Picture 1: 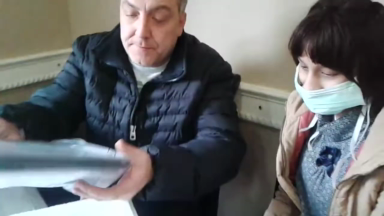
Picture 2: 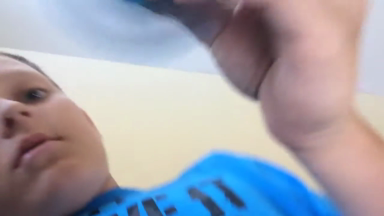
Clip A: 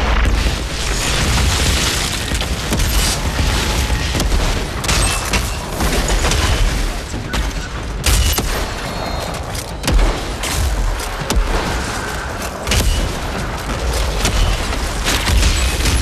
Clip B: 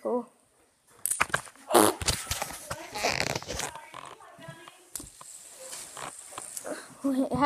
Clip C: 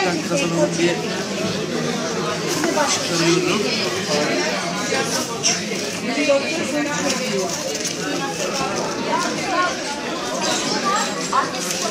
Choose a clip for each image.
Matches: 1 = C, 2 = B